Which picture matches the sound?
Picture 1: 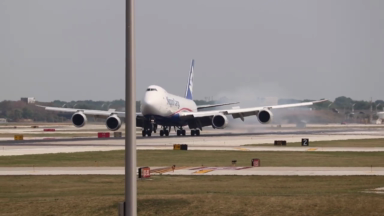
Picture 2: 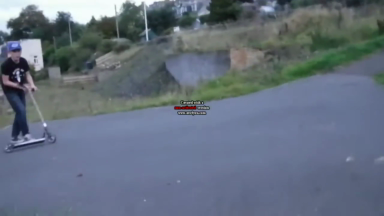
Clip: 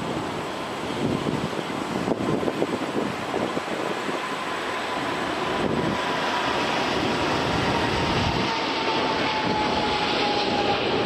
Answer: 1